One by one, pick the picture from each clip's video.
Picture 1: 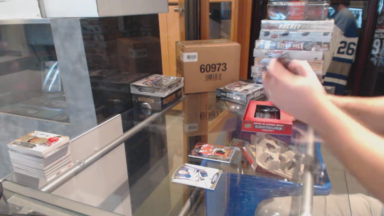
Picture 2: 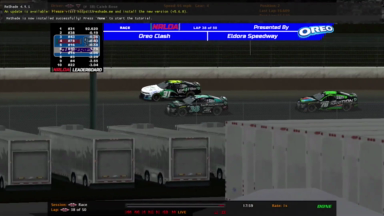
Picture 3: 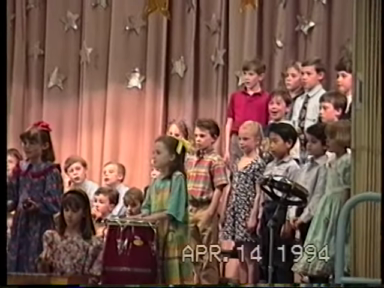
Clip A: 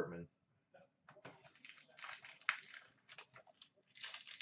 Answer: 1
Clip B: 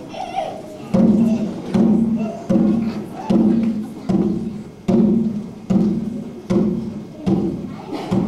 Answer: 3